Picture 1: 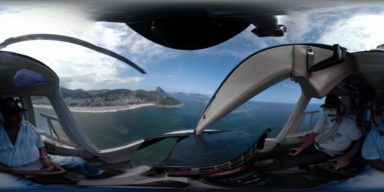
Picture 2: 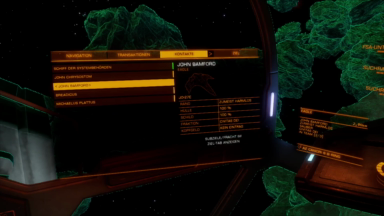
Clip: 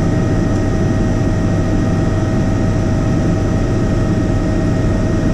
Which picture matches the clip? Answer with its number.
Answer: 1